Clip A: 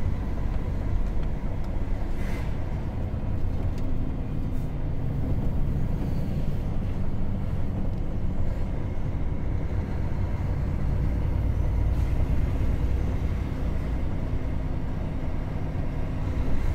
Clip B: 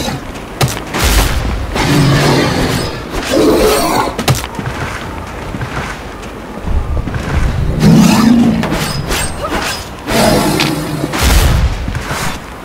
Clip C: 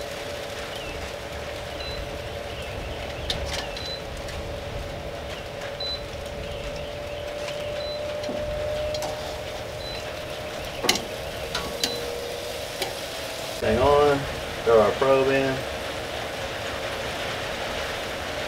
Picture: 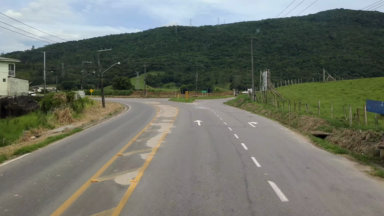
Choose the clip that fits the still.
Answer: A